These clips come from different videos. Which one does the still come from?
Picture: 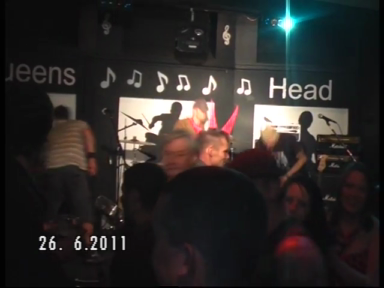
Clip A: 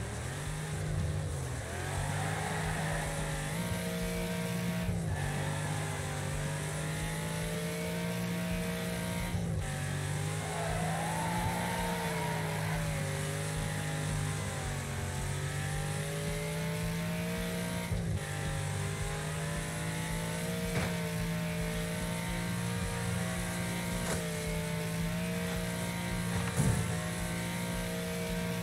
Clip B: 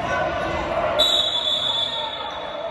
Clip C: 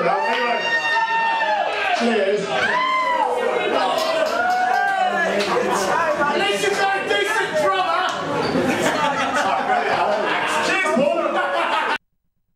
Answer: C